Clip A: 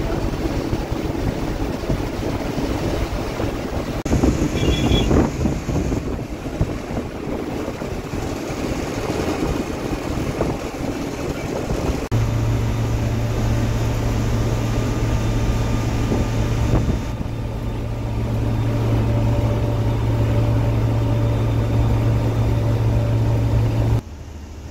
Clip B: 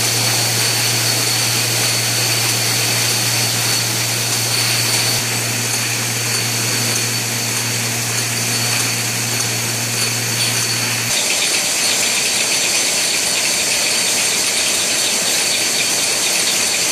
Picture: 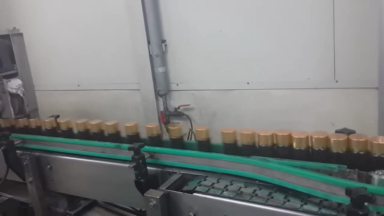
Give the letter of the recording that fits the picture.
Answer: B